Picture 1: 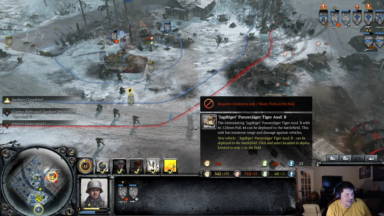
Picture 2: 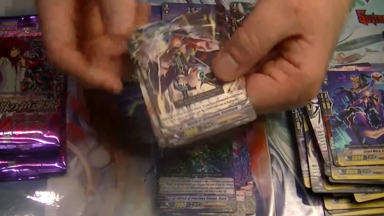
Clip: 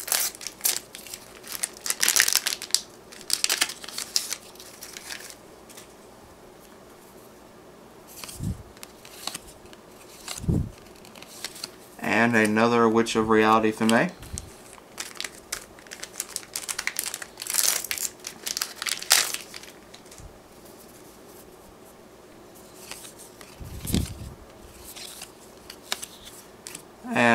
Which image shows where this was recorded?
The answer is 2